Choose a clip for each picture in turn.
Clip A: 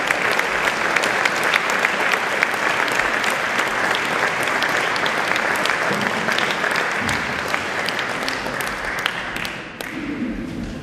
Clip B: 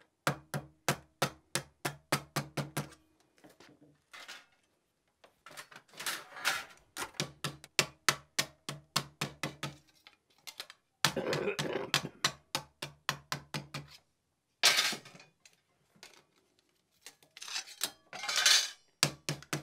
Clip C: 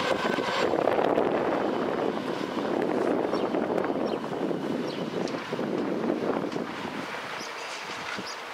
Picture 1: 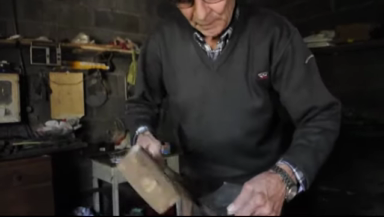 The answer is B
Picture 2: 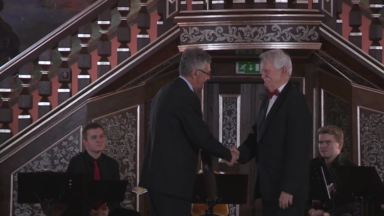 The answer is A